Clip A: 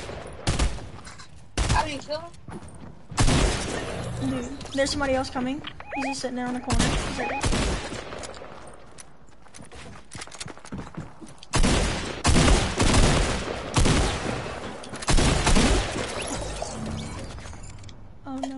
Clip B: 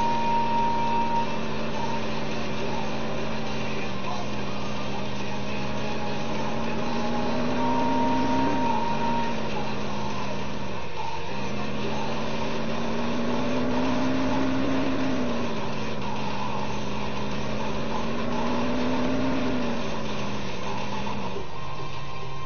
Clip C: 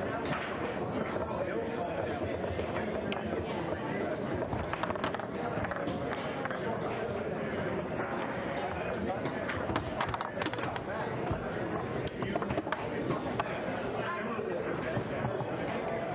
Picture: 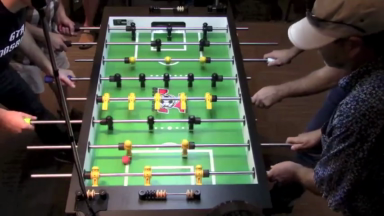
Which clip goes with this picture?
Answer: C